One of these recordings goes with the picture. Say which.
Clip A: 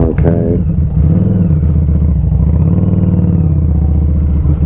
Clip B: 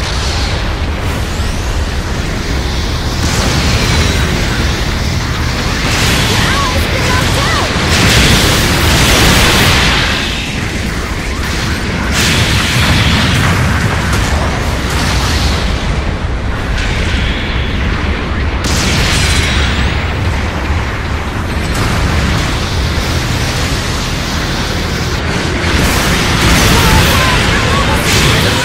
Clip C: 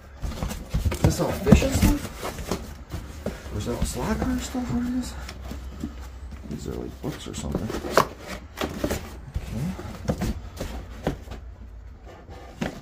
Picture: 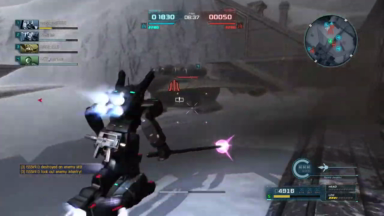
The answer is B